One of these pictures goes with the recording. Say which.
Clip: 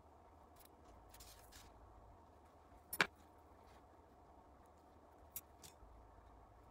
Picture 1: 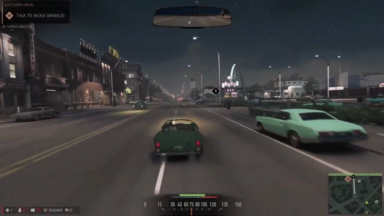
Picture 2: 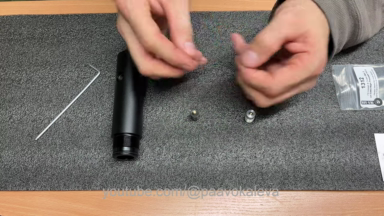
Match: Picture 2